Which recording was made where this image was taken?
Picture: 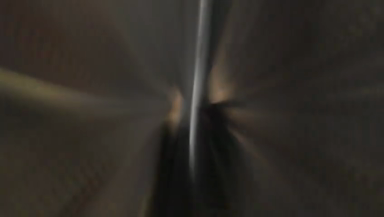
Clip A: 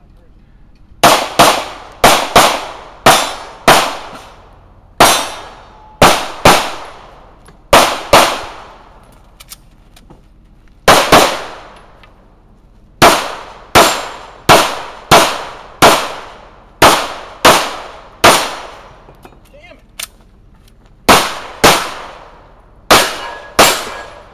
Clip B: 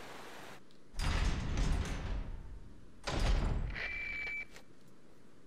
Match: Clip B